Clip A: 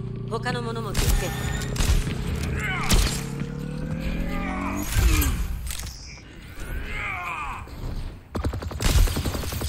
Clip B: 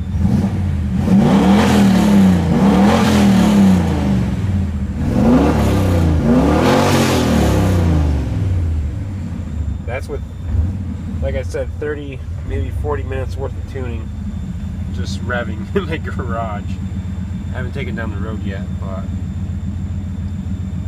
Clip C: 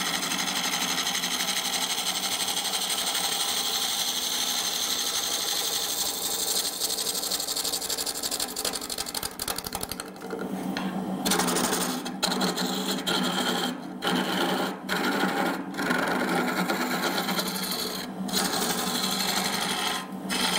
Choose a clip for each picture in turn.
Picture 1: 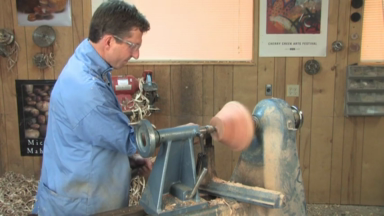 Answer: C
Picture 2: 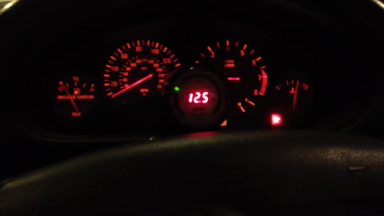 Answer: B